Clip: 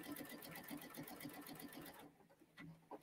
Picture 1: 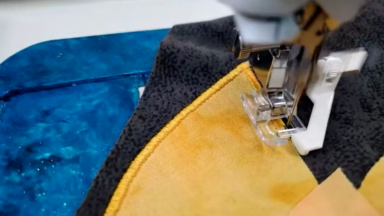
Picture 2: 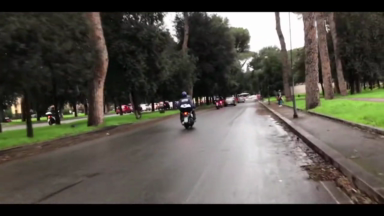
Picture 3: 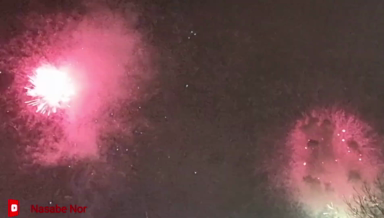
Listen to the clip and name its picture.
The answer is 1